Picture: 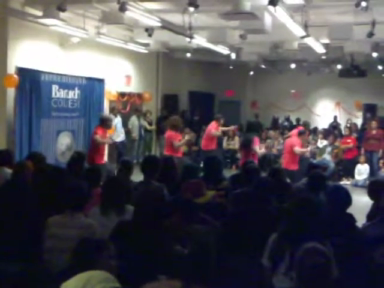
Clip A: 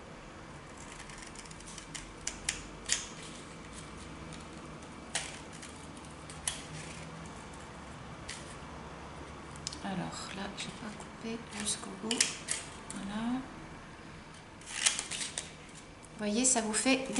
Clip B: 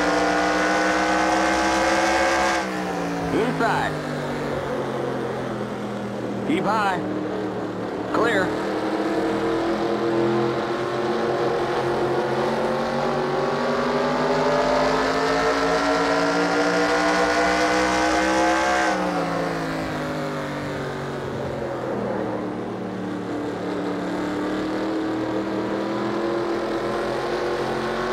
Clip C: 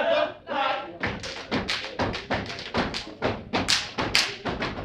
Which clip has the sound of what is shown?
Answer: C